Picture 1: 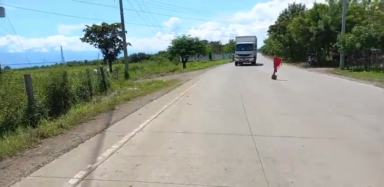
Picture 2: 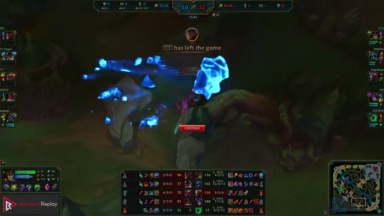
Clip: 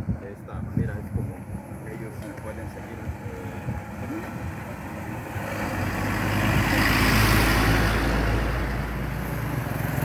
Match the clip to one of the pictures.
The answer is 1